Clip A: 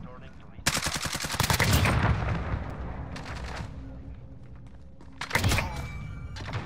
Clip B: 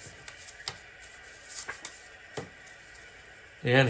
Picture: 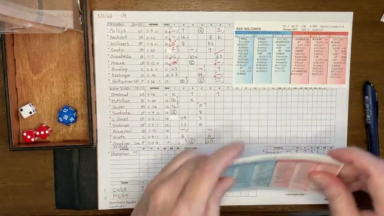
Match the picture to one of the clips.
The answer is B